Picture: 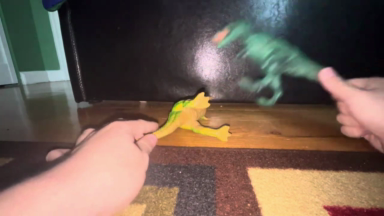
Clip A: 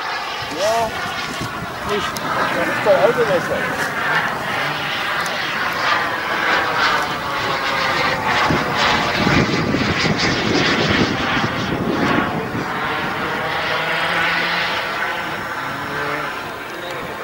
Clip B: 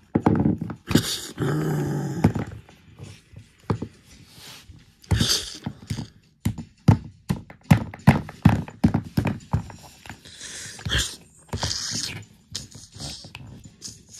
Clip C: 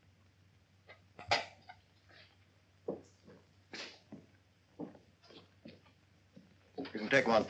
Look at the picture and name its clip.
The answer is B